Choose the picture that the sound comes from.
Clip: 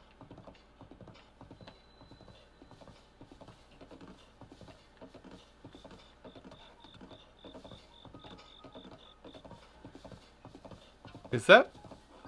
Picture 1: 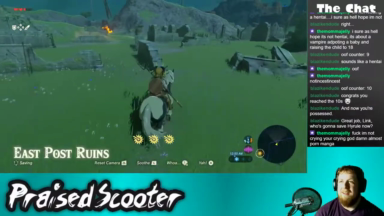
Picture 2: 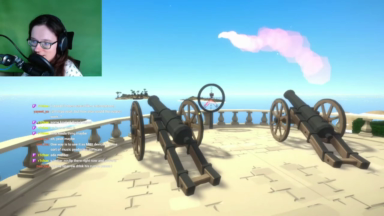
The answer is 1